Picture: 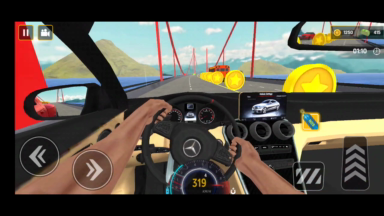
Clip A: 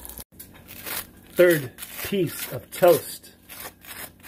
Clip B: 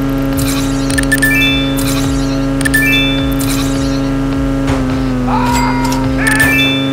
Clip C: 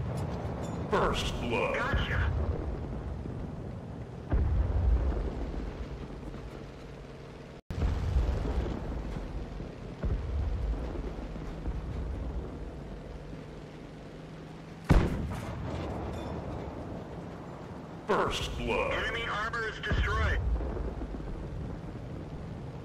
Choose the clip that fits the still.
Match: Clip B